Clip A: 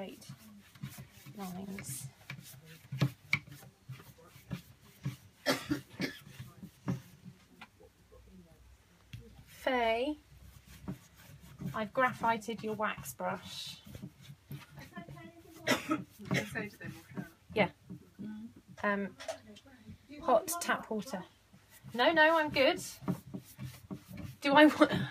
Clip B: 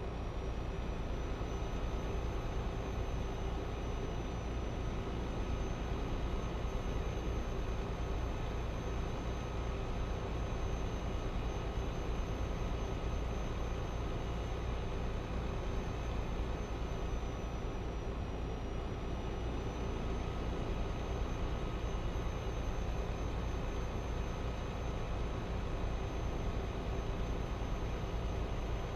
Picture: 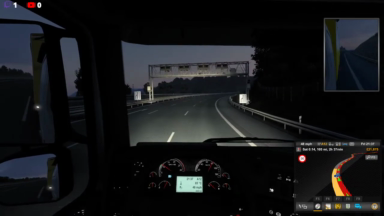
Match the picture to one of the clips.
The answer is B